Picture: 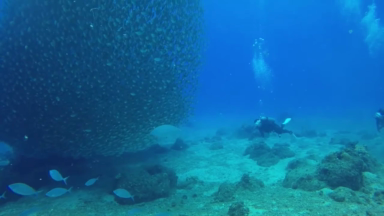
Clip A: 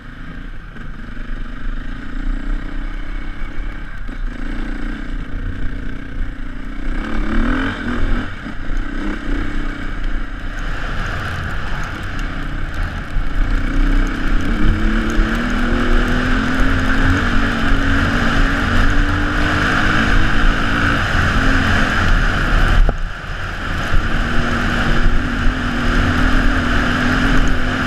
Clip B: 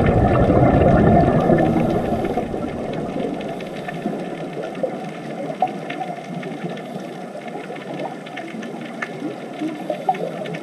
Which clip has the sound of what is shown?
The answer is B